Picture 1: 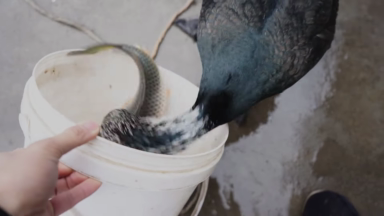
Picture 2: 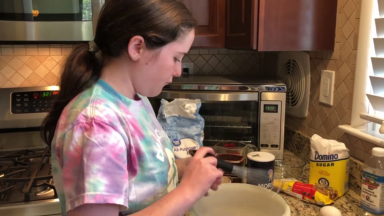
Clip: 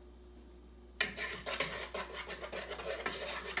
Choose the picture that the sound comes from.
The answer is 2